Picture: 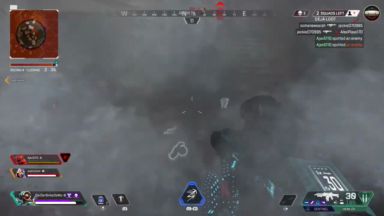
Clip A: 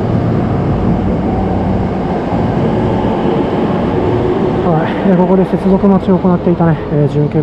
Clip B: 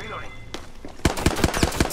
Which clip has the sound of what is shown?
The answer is B